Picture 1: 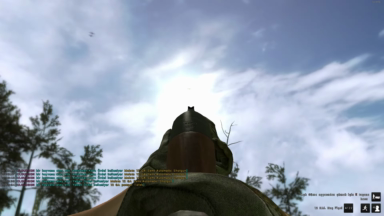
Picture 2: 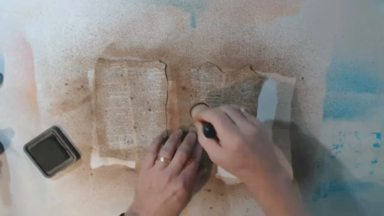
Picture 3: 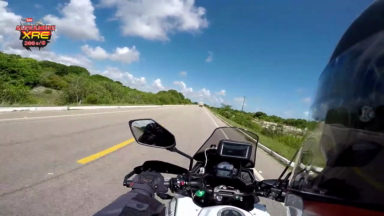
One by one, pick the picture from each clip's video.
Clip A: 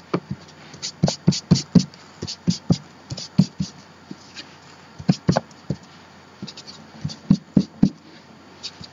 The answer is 2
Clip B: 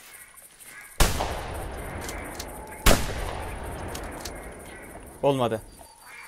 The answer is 1